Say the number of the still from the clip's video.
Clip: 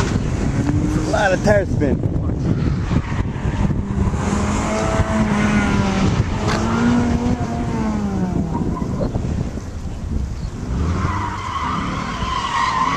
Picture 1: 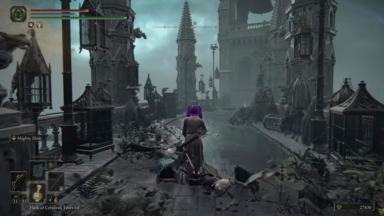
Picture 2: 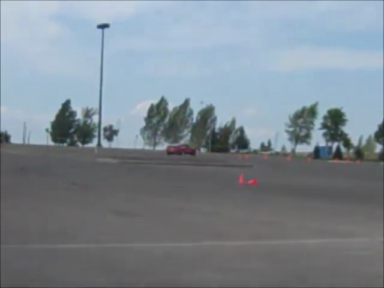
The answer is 2